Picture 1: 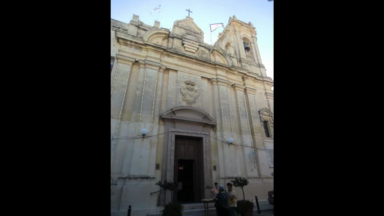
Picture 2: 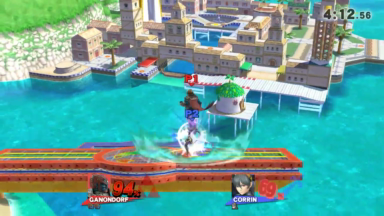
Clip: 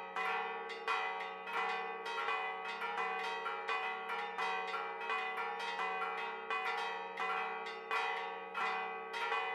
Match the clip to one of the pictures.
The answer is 1